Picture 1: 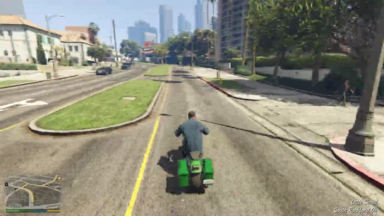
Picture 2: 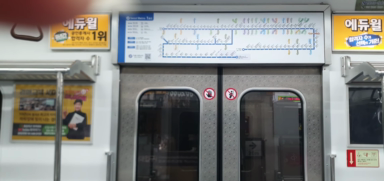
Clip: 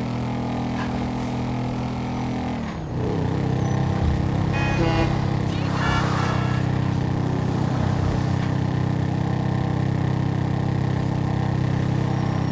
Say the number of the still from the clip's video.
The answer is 1